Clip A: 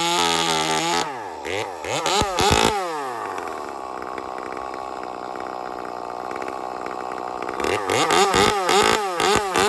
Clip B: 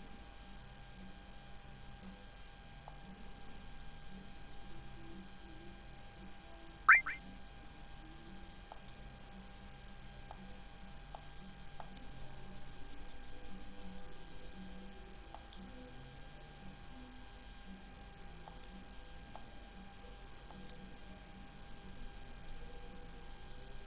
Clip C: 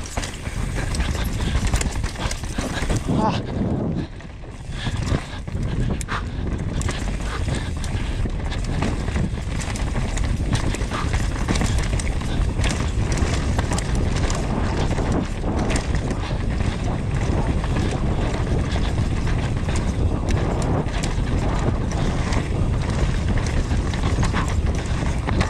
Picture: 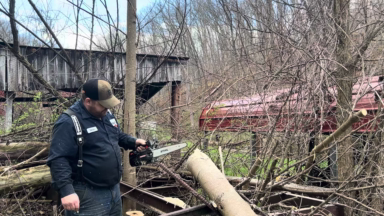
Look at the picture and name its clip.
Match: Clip A